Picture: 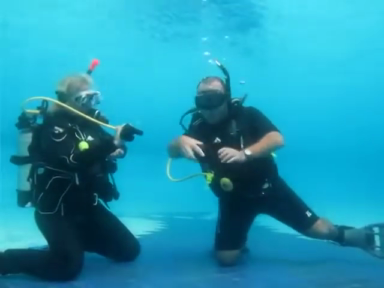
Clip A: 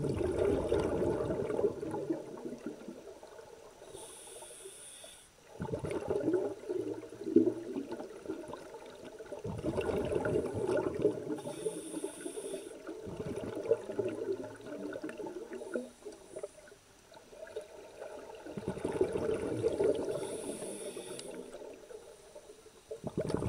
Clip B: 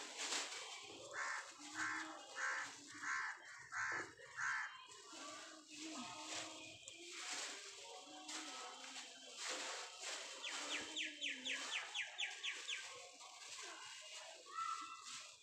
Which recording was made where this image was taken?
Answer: A